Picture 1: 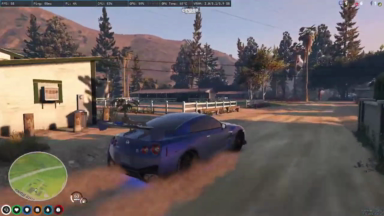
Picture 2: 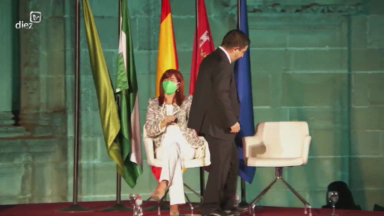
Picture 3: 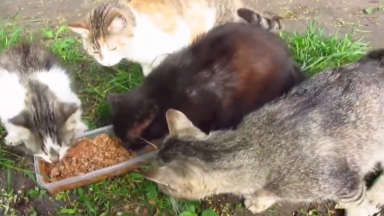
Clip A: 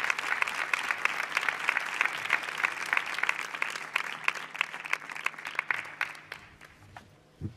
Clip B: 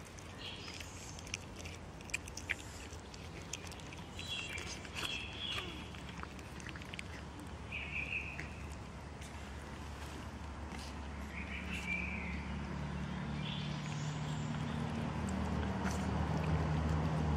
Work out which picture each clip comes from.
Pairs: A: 2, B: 3